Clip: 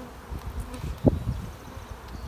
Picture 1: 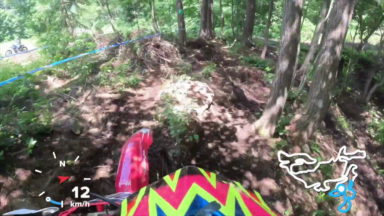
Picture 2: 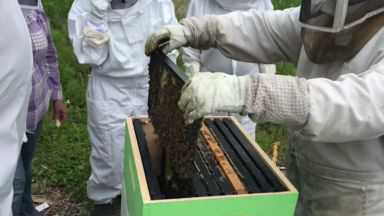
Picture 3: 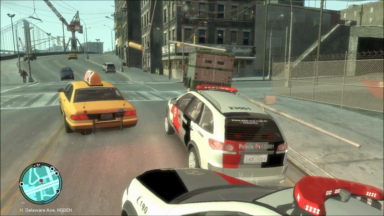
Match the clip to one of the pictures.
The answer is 2